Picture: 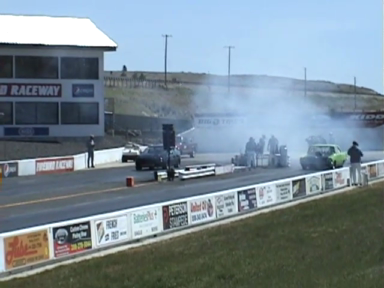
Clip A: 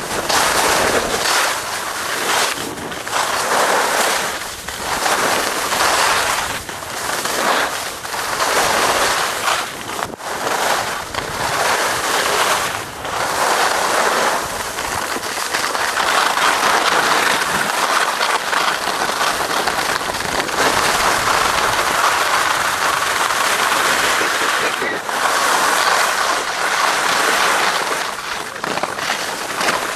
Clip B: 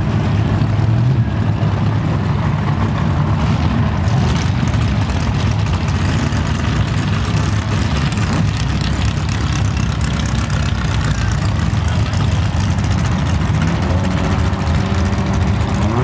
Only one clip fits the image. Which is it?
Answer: B